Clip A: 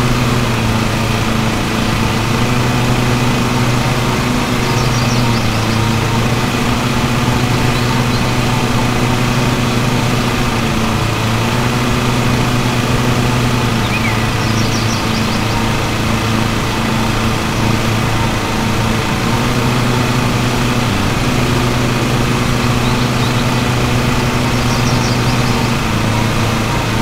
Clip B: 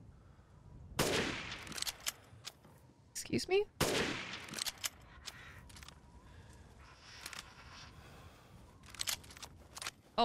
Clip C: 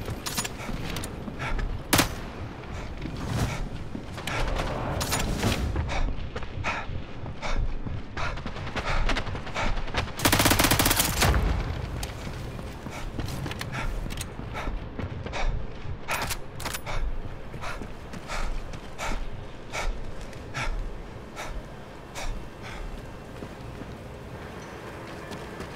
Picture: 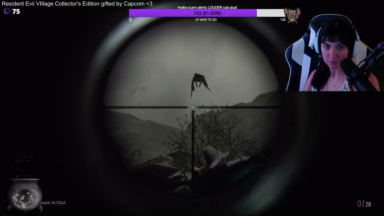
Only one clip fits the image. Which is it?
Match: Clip B